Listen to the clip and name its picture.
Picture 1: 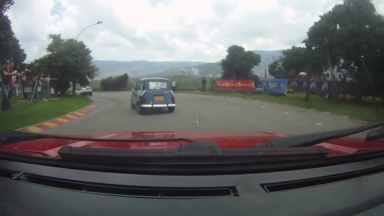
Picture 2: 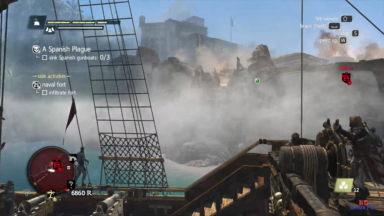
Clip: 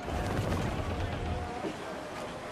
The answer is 2